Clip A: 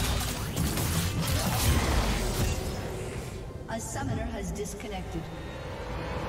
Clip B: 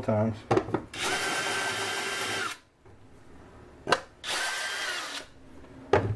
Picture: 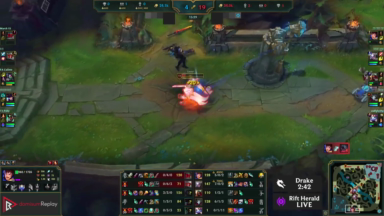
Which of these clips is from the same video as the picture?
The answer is A